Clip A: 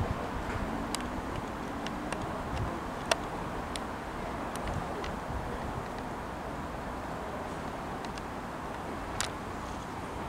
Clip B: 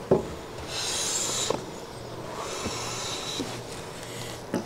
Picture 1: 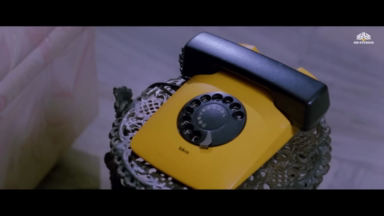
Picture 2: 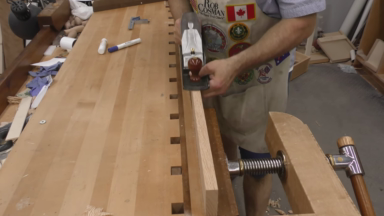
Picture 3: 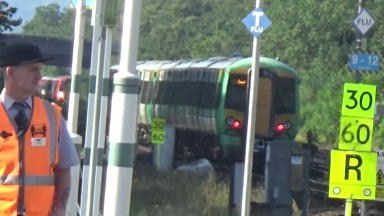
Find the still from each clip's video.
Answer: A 3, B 2